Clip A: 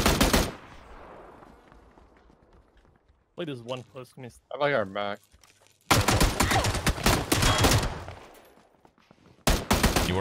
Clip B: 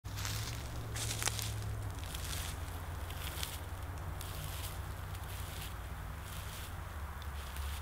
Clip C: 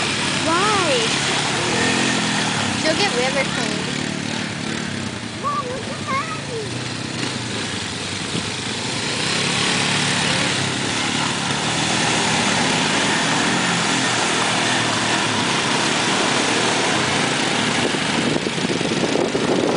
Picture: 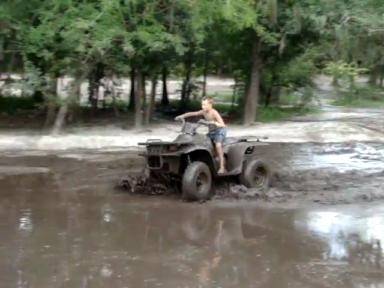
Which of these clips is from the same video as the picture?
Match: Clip C